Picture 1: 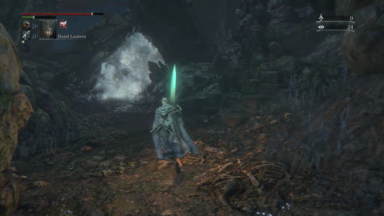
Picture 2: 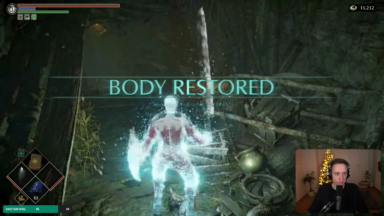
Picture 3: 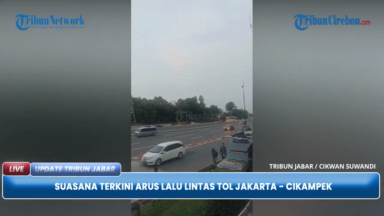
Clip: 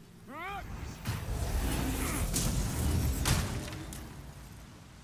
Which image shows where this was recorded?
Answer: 2